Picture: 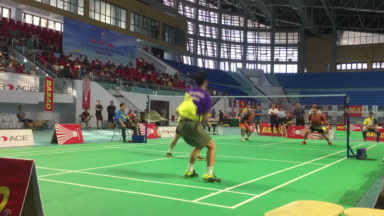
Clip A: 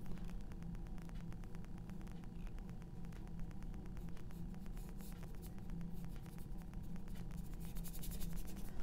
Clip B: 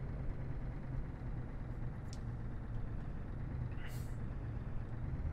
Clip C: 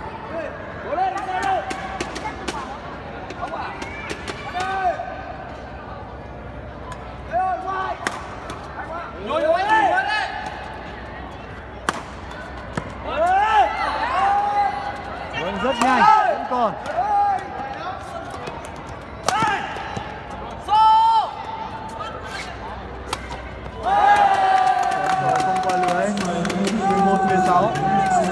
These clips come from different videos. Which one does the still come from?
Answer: C